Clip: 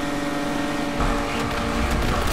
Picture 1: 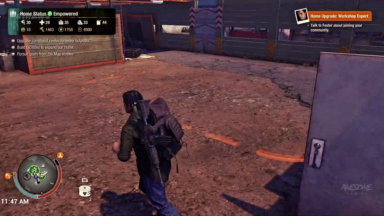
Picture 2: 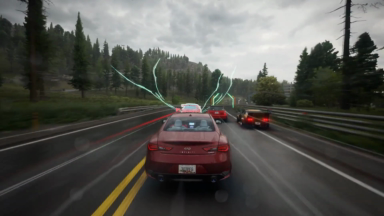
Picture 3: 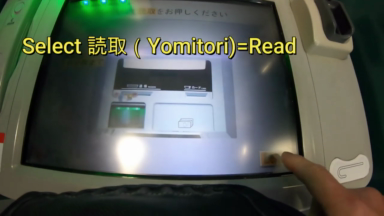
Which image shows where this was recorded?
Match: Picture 2